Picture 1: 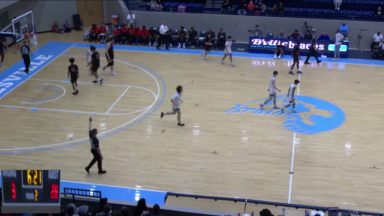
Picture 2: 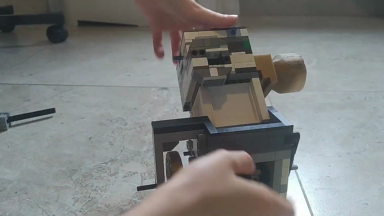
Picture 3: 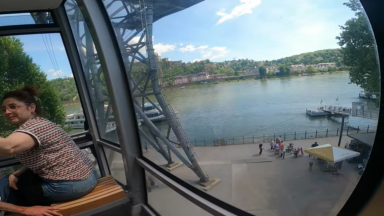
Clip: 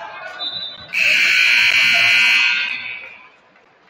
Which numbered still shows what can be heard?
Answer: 1